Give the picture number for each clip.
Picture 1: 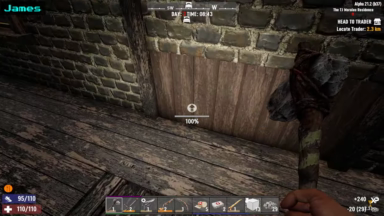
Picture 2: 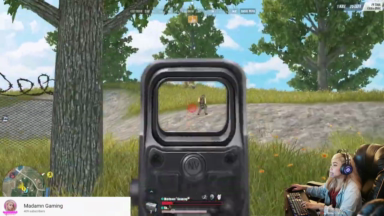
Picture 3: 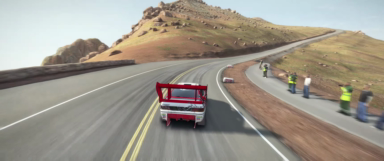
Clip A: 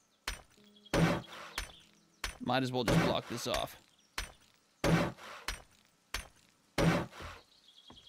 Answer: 1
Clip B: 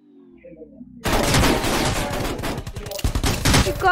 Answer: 2